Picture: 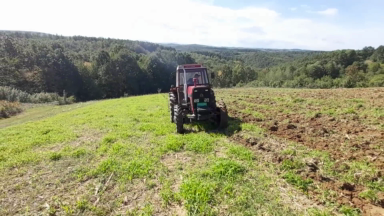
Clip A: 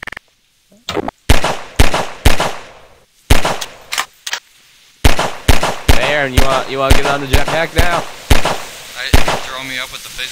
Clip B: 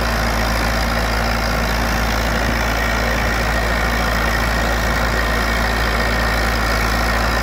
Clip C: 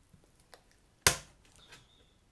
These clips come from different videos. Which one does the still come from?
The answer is B